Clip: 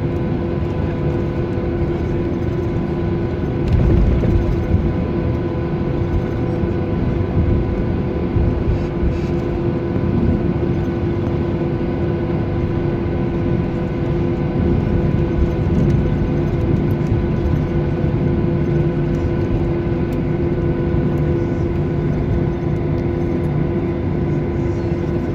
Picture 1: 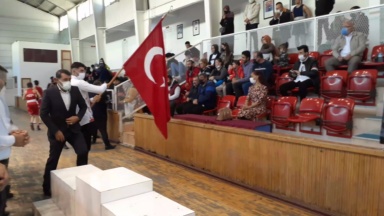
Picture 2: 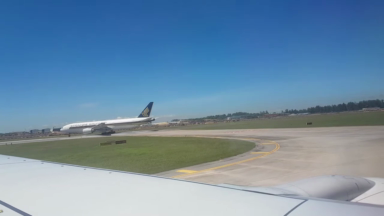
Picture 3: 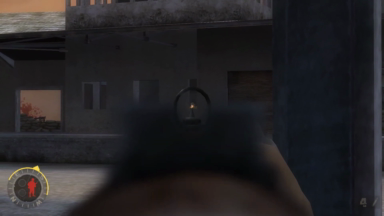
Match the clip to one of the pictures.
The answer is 2